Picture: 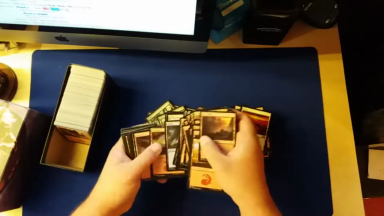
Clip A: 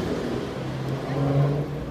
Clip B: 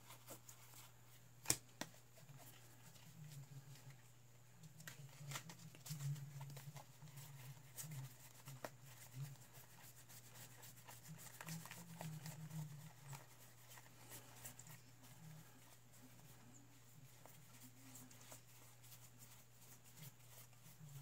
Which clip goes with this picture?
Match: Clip B